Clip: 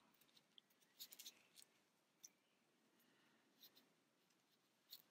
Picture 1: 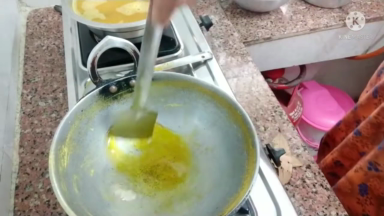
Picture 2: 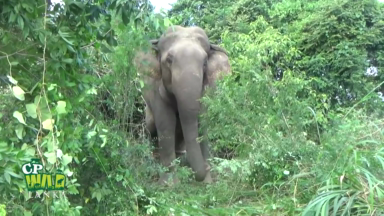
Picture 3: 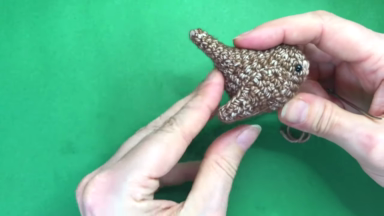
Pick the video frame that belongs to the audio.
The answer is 3